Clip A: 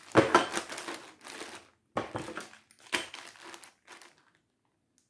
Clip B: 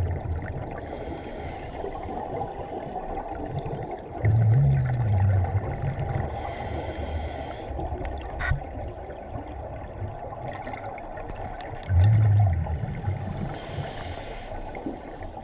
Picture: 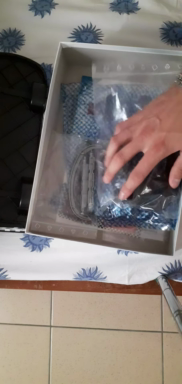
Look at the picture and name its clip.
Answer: A